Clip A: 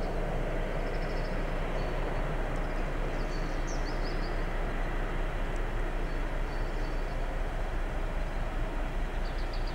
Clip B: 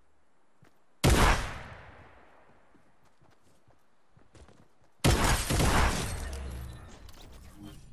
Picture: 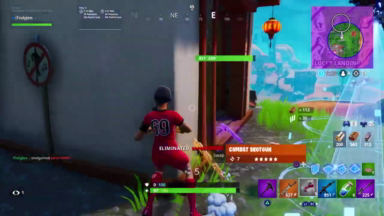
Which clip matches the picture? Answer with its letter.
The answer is B